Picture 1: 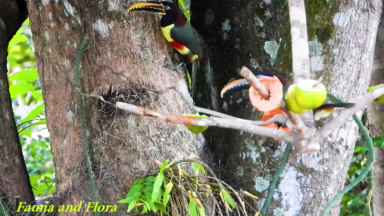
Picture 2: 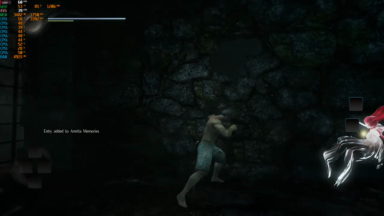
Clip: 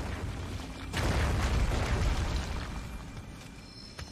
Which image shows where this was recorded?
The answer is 2